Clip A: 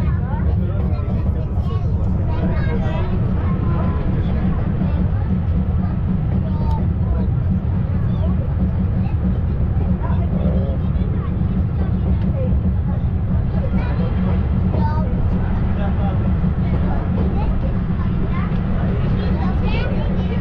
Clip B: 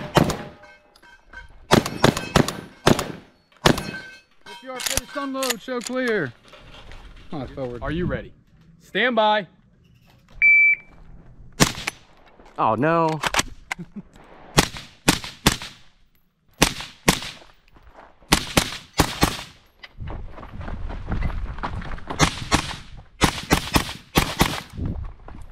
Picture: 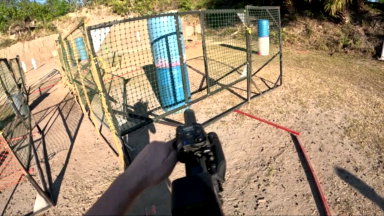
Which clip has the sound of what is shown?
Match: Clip B